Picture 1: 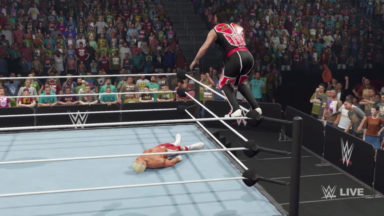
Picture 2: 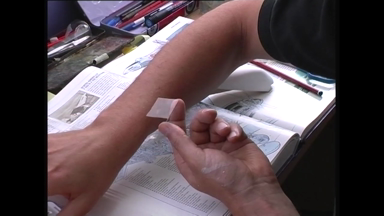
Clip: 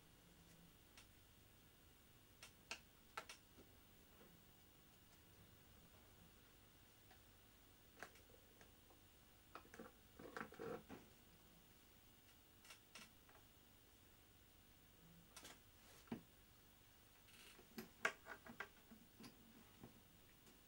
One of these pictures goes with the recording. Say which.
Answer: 2